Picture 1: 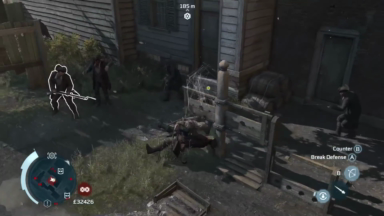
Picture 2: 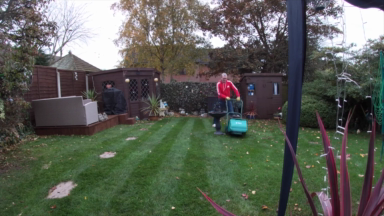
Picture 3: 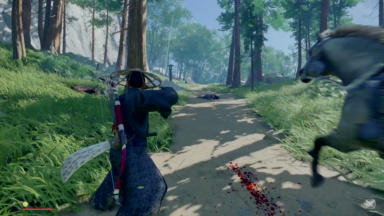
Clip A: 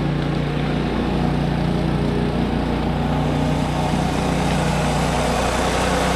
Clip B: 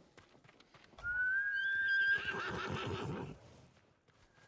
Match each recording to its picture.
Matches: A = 2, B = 3